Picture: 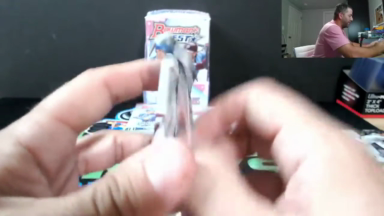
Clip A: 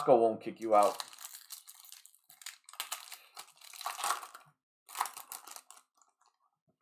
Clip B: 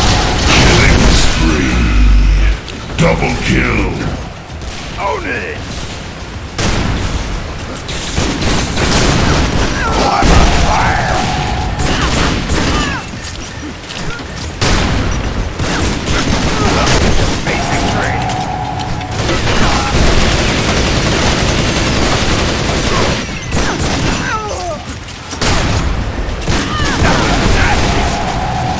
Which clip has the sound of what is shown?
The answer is A